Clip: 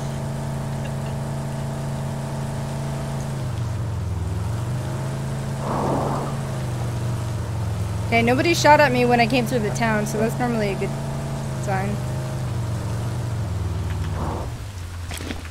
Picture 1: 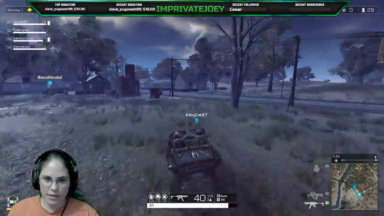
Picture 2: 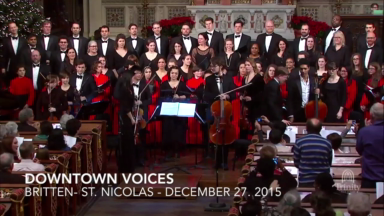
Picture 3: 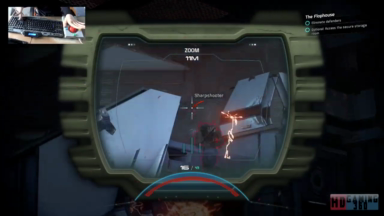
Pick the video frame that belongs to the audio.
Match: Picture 1